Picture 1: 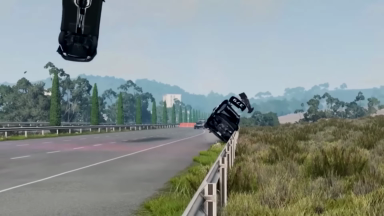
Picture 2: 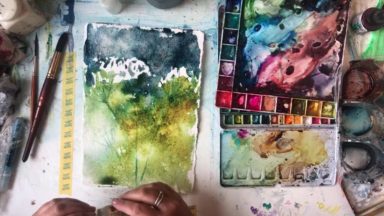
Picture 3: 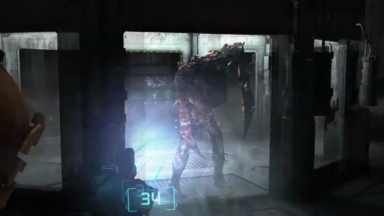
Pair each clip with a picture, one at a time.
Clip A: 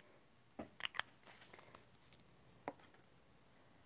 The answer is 2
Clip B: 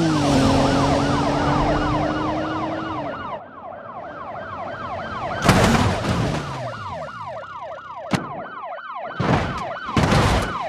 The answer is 1